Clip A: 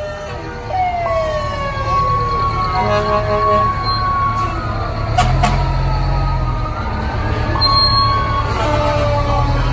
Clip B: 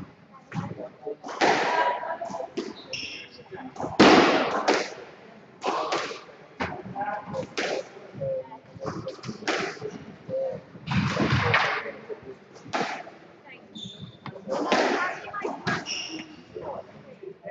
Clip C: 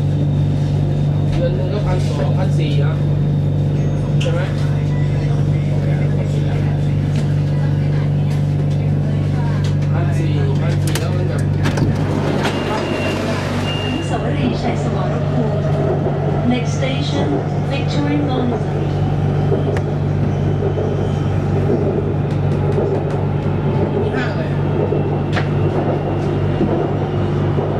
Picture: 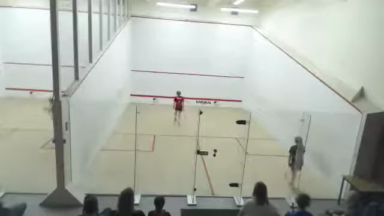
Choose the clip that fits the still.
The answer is B